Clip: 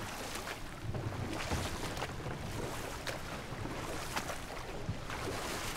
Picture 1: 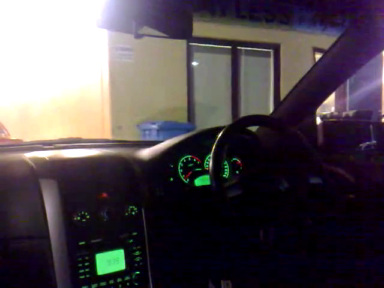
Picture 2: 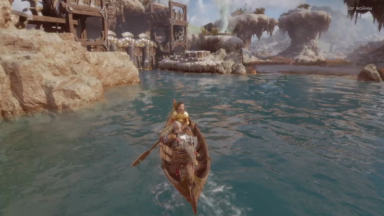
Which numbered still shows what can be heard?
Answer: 2